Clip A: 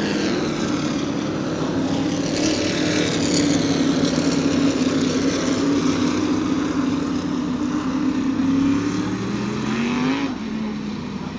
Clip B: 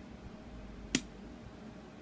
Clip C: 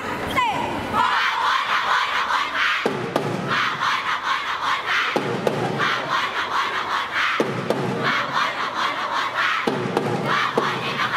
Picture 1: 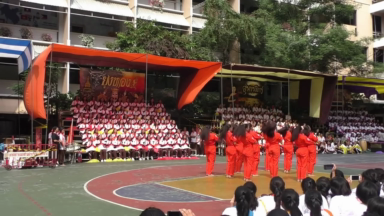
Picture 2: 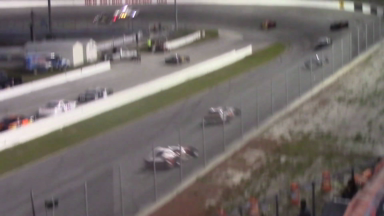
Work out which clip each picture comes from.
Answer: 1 C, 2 A